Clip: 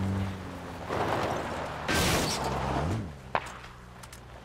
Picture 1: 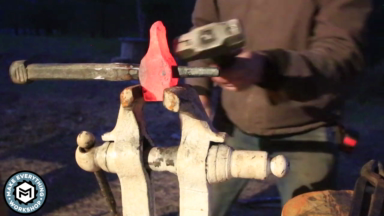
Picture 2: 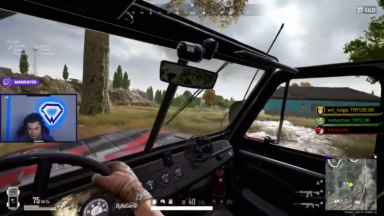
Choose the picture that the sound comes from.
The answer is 2